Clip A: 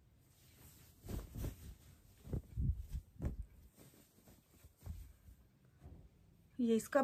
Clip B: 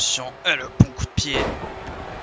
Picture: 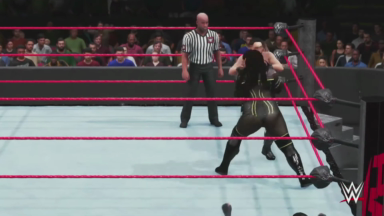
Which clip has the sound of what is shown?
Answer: B